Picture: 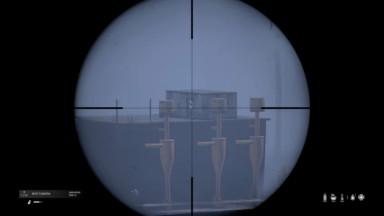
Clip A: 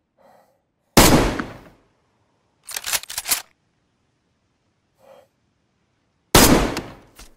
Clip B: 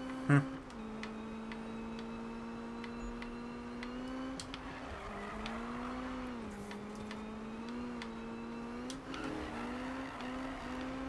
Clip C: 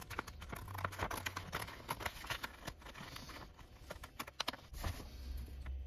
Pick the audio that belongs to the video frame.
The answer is A